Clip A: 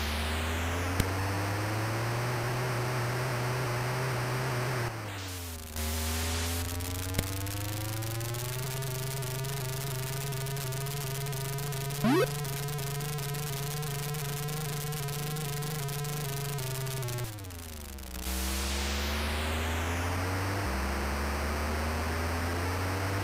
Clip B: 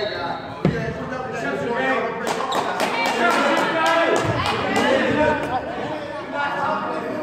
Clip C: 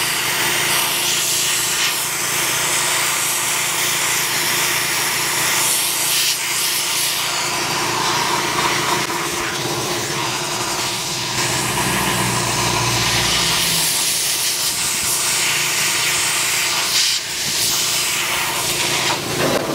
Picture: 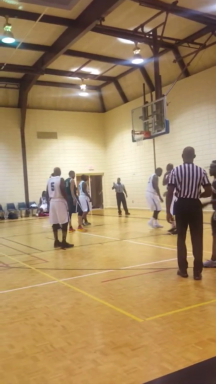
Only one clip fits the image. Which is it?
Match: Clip B